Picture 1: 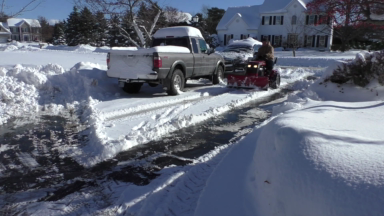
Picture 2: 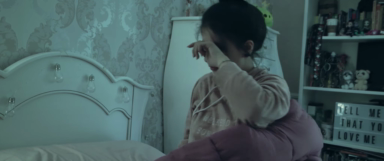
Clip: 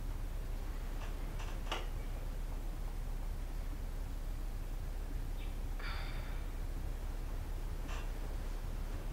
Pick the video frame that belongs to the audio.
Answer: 2